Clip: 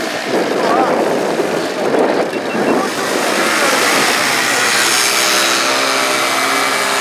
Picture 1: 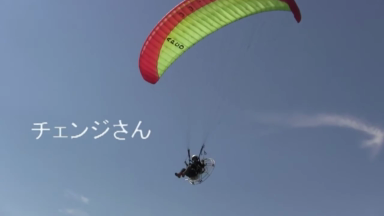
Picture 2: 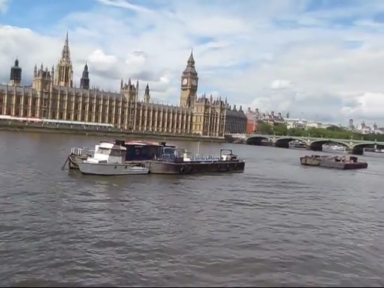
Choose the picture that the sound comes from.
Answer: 1